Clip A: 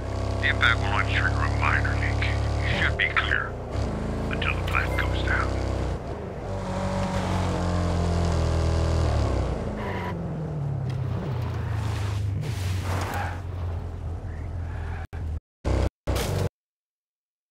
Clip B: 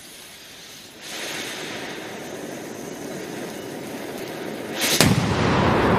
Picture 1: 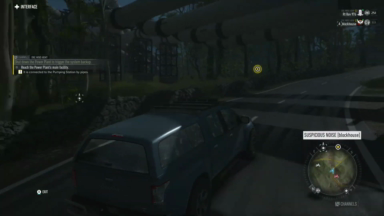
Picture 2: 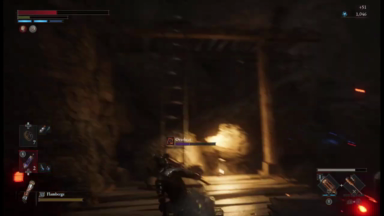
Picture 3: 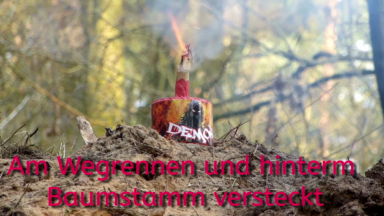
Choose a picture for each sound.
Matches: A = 1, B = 3